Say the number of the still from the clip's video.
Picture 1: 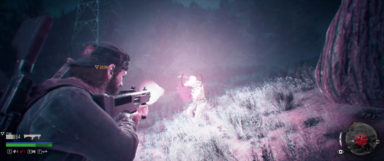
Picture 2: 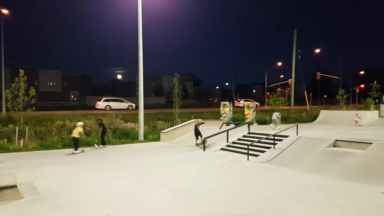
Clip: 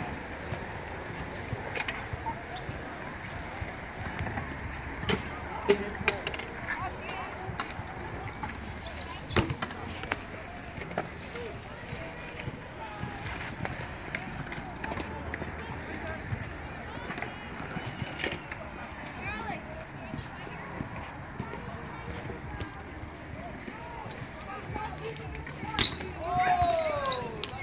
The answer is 2